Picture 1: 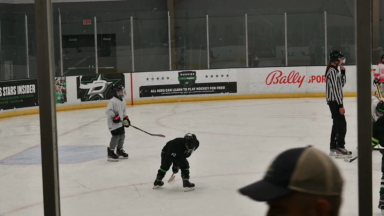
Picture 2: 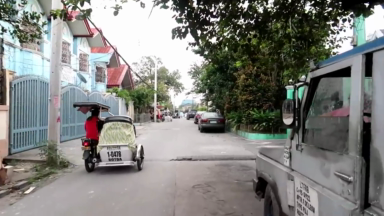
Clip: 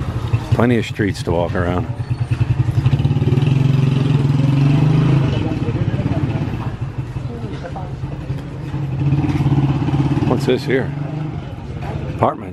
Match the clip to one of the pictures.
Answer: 2